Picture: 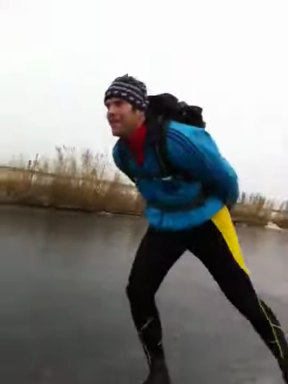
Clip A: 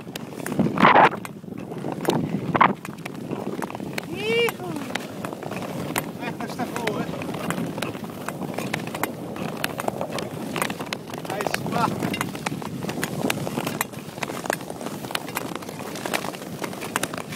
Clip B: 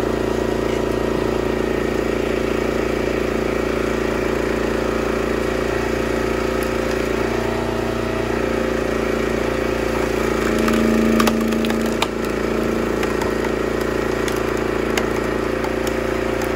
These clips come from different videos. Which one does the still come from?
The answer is A